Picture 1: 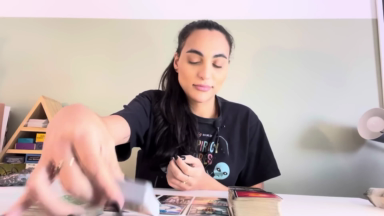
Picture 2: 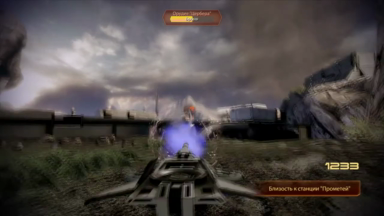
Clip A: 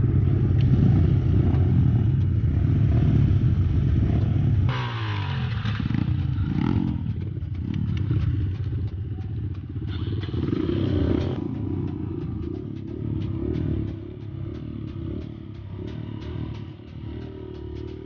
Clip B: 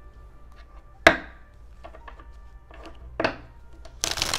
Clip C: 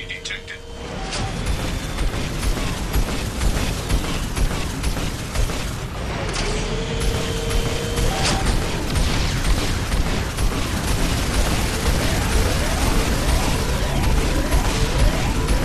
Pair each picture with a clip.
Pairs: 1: B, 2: C